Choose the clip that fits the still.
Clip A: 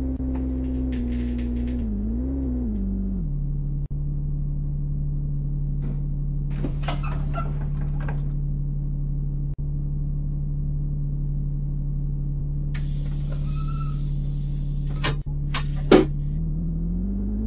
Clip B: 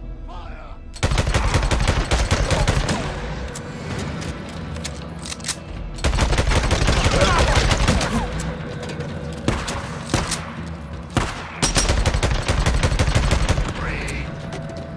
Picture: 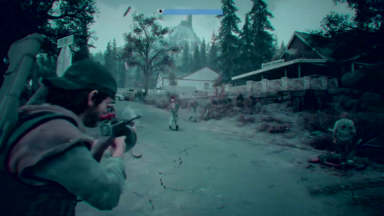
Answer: B